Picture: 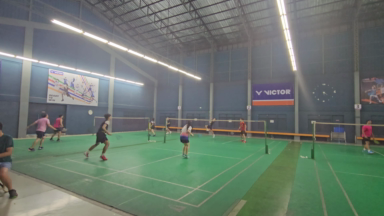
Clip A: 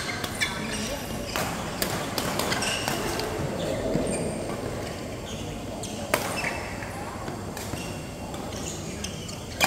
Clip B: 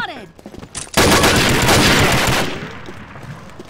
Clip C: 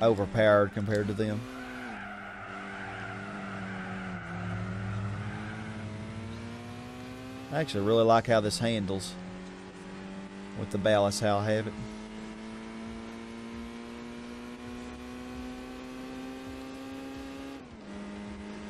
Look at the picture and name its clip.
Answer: A